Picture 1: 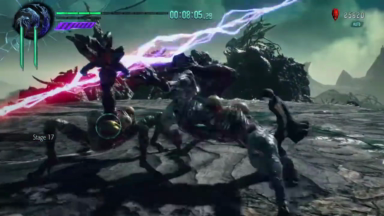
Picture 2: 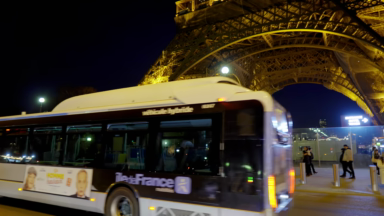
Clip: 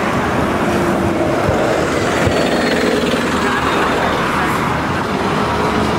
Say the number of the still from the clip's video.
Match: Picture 2